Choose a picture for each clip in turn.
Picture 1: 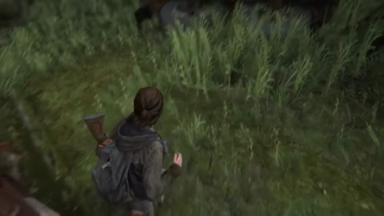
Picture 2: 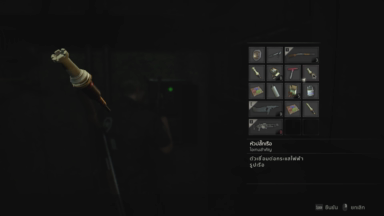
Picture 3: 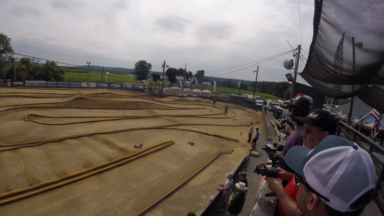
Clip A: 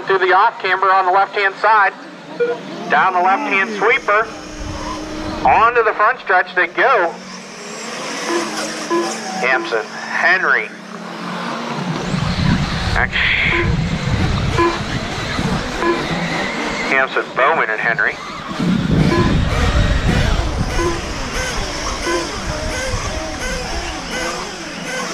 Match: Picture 3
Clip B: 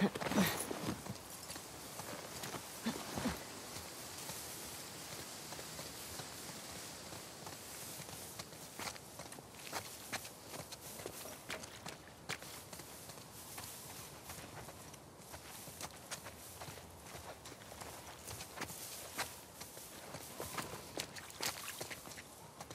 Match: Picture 1